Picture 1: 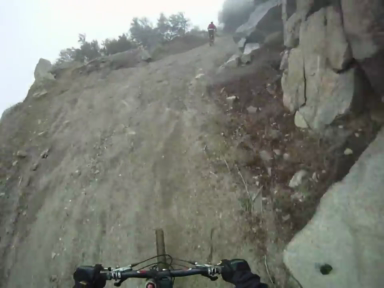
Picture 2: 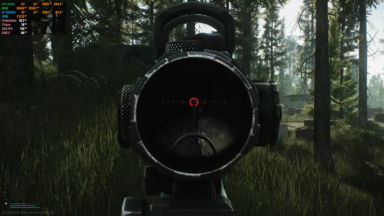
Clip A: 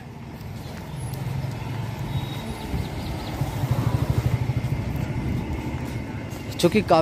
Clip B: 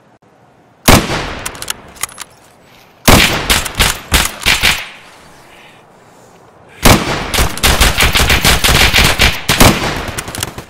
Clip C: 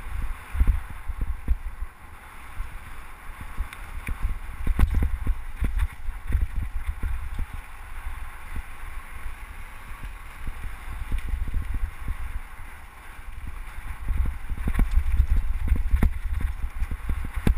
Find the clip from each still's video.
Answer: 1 C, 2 B